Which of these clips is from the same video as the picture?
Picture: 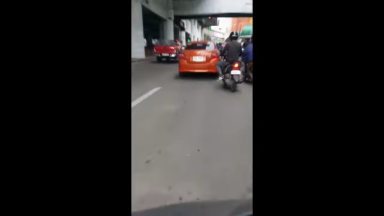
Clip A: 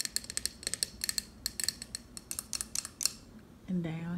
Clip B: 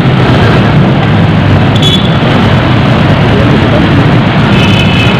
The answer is B